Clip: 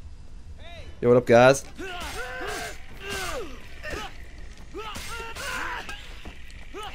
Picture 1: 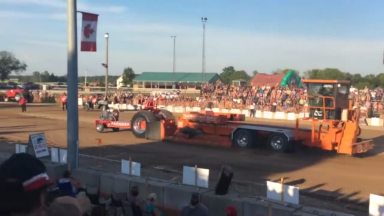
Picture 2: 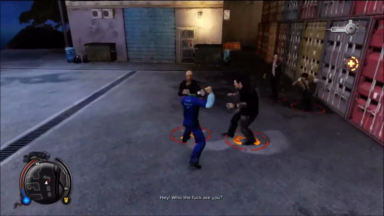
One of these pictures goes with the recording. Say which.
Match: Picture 2